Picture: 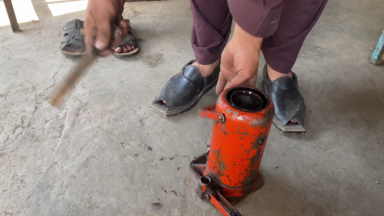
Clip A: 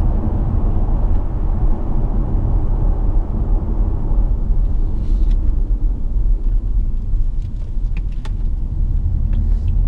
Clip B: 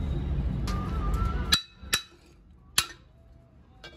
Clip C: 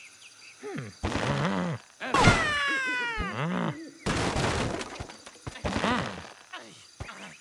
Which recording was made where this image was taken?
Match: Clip B